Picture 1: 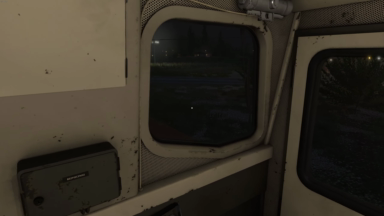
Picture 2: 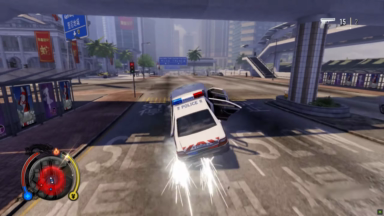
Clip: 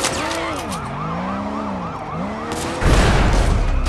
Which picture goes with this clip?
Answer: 2